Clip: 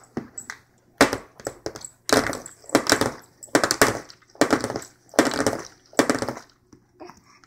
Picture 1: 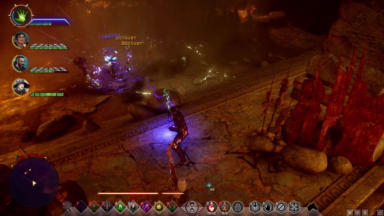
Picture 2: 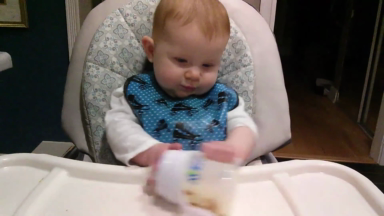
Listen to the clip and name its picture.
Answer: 2